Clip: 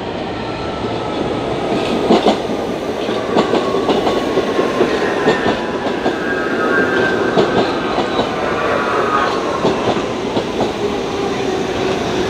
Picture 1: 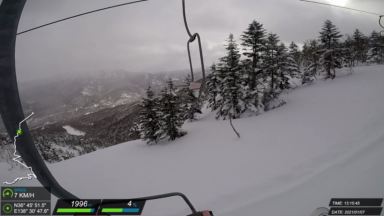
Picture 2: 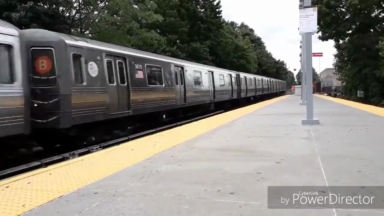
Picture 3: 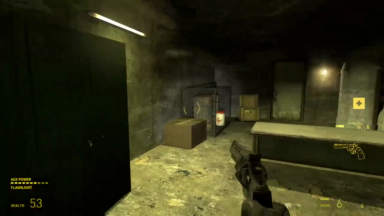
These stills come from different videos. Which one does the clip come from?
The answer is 2